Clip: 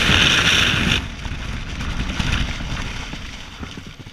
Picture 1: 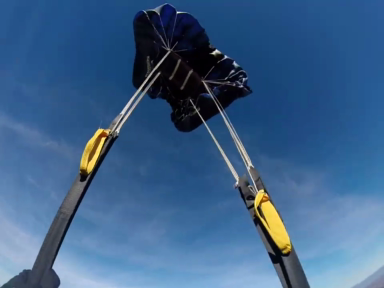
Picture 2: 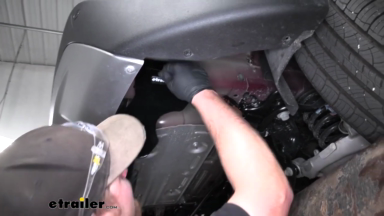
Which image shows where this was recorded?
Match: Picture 1